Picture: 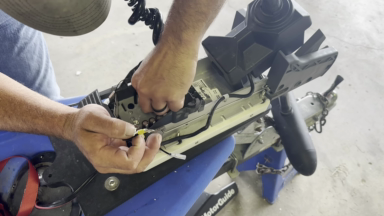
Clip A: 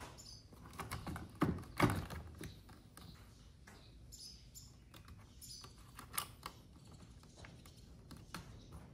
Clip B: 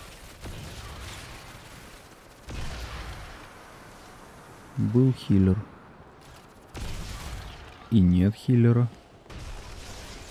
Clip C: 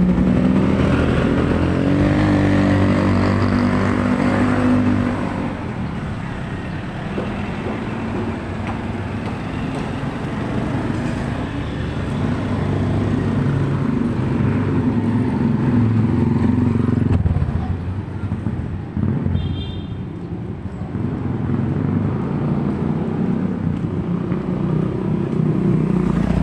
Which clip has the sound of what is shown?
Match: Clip A